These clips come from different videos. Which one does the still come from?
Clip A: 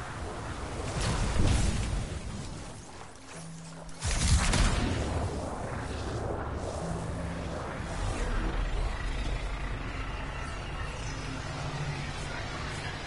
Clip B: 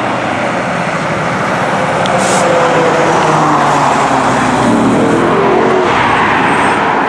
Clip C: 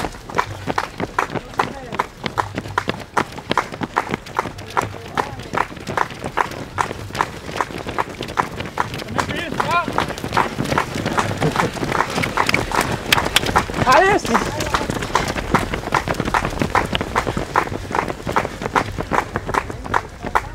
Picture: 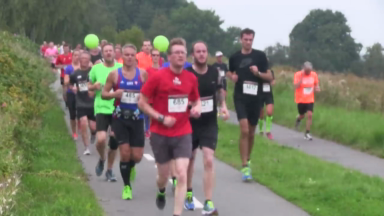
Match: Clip C